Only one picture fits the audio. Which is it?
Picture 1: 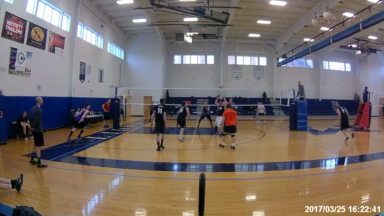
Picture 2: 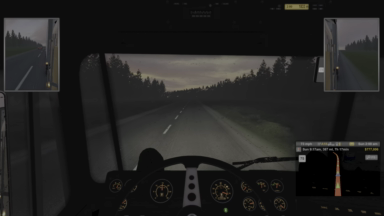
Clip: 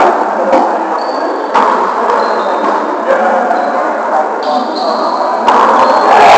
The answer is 1